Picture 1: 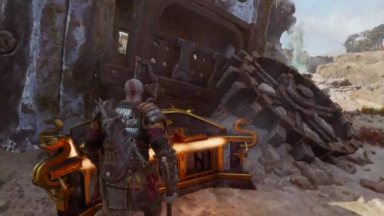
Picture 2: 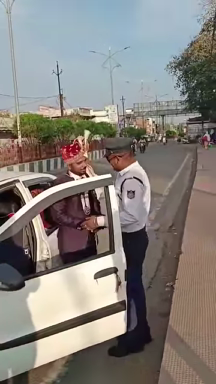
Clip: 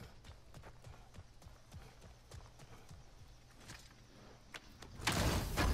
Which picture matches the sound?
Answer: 1